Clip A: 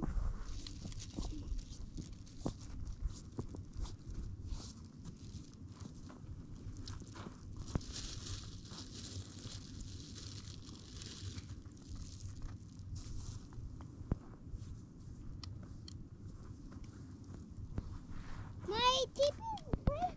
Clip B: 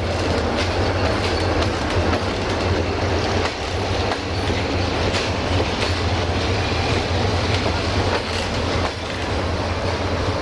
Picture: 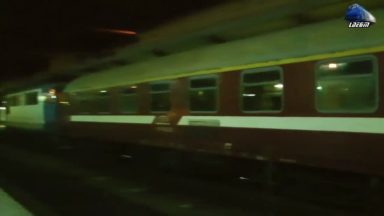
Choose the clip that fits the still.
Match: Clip B